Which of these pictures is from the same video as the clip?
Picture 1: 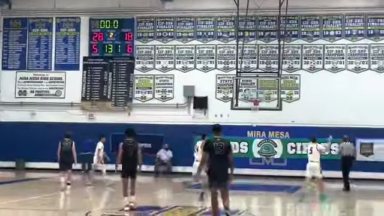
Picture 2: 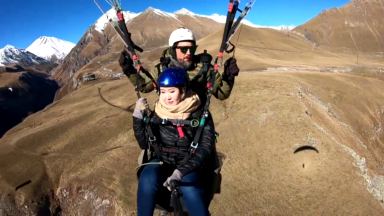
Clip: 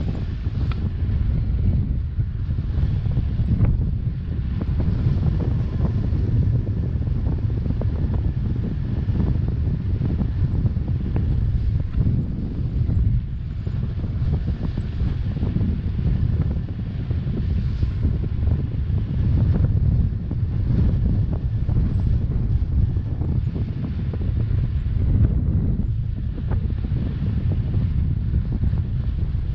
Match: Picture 2